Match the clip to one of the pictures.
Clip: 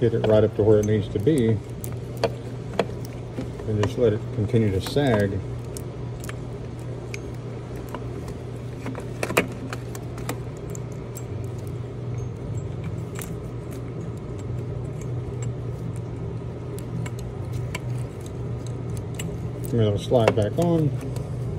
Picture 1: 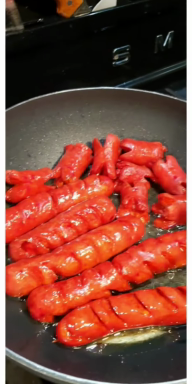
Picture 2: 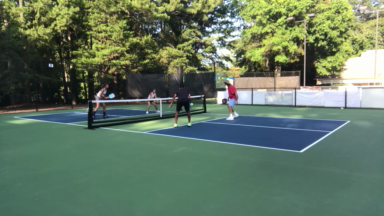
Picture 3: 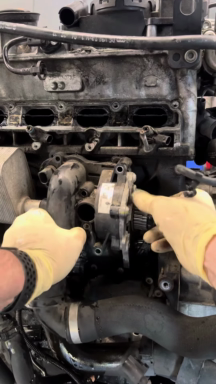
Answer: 3